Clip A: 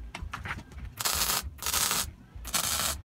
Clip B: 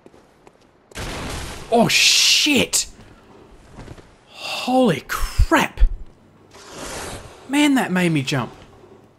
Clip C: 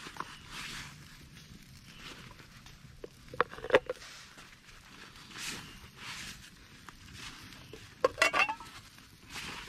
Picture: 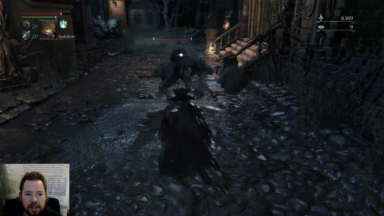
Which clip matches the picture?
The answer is B